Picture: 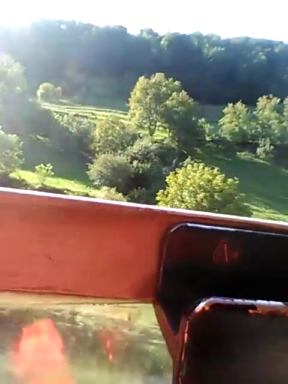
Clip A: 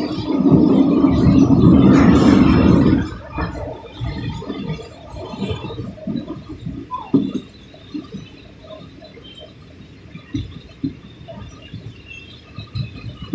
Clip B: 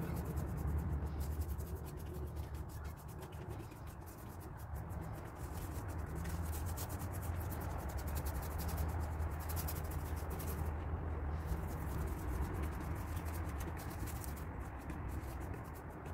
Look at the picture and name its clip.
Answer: A